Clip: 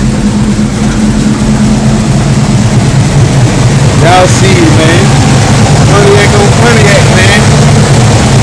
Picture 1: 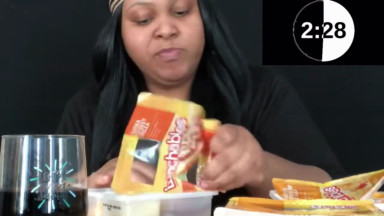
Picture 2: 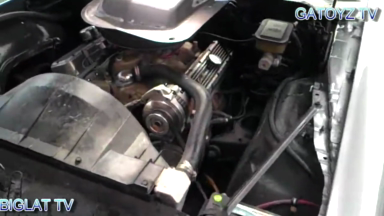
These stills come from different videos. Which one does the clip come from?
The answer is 2